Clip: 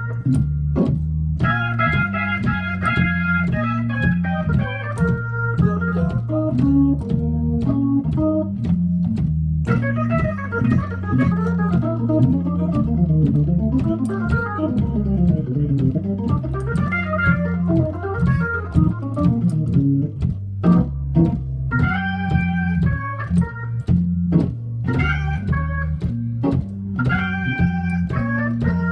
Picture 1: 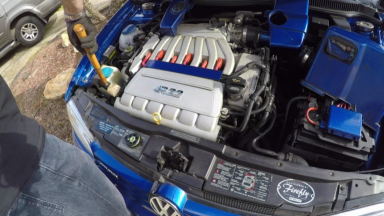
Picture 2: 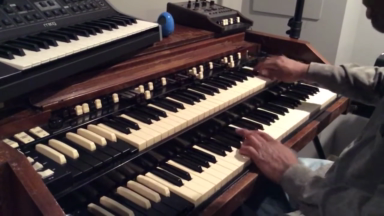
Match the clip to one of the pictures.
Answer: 2